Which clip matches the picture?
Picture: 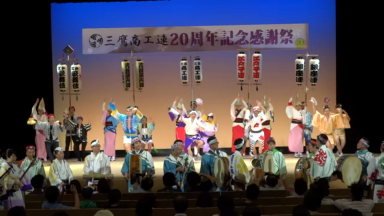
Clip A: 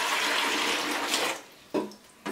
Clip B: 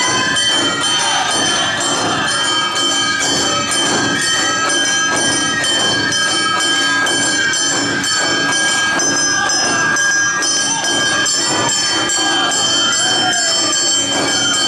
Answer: B